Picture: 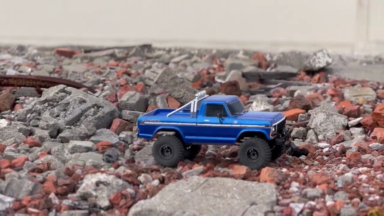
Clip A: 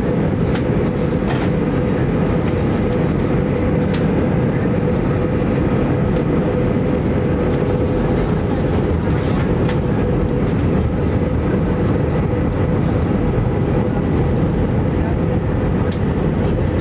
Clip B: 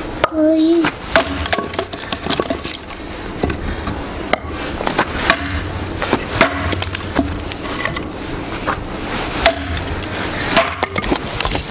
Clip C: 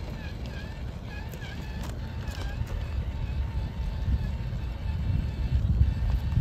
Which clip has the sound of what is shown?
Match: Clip C